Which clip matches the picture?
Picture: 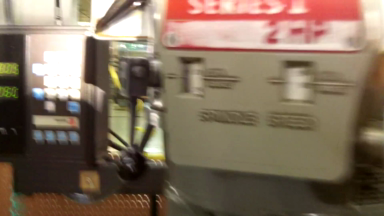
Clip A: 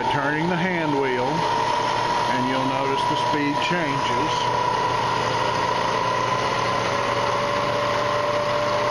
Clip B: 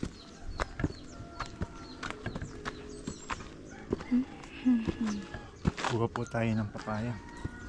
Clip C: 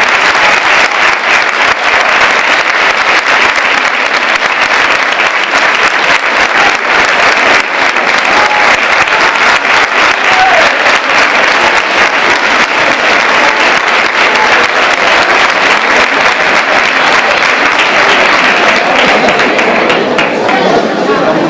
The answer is A